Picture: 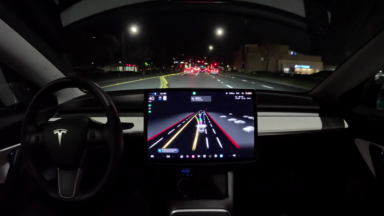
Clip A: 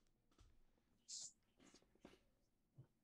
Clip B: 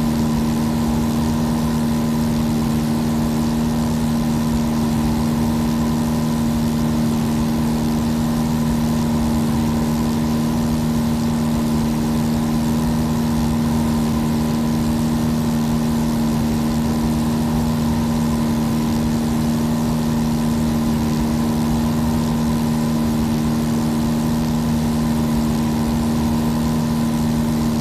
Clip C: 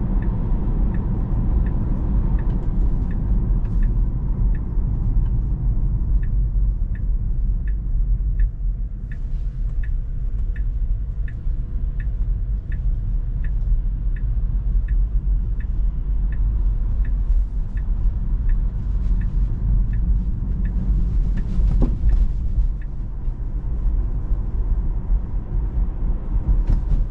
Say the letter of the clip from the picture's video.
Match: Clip C